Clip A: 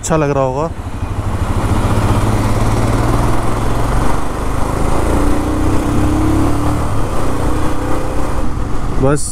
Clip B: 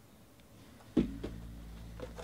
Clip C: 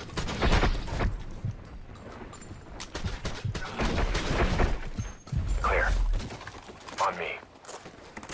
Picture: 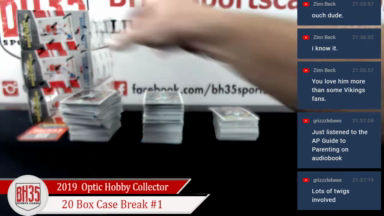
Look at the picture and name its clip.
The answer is B